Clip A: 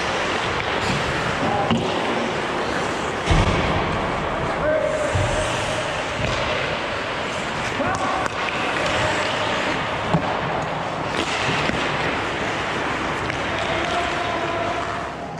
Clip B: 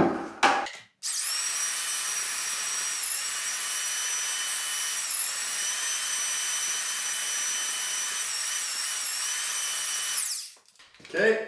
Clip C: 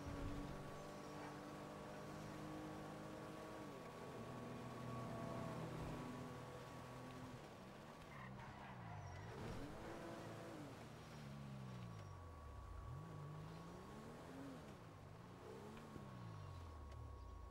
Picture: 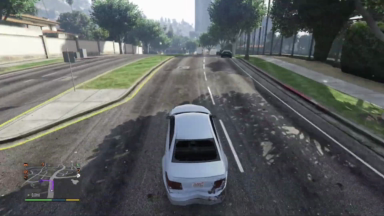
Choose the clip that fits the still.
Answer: C